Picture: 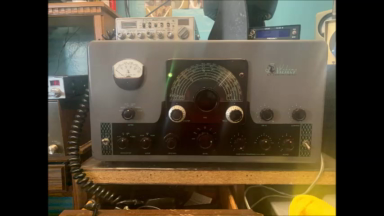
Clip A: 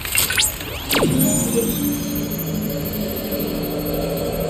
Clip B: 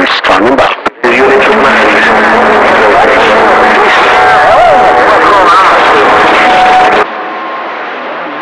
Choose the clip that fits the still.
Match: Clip B